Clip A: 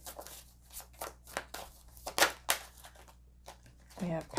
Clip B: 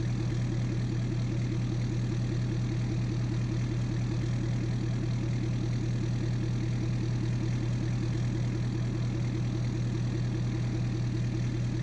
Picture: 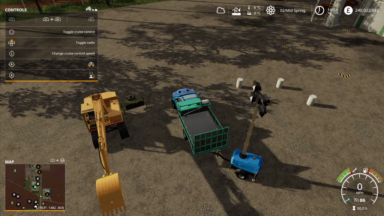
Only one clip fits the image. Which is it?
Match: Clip B